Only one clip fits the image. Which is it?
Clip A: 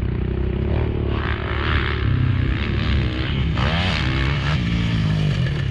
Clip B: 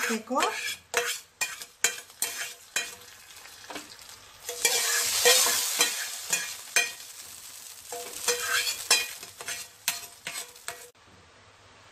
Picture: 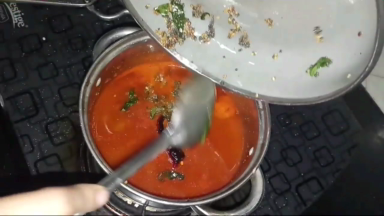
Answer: B